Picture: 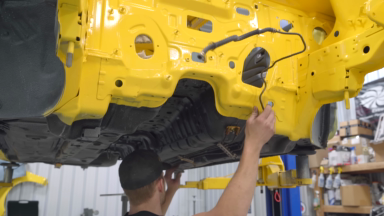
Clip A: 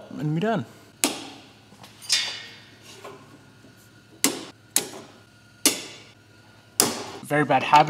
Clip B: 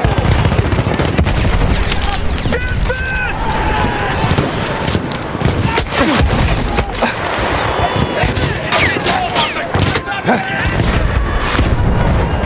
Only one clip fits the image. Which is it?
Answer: A